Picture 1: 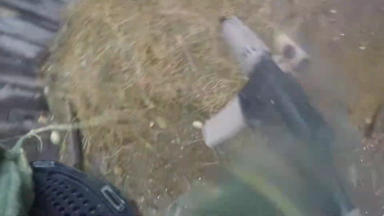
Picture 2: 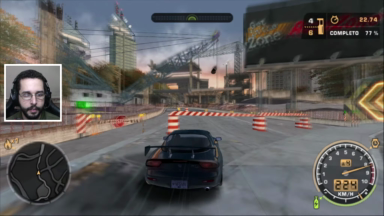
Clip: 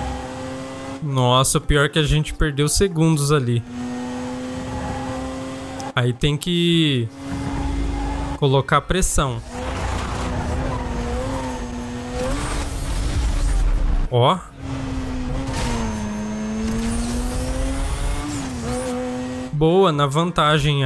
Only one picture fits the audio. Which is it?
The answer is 2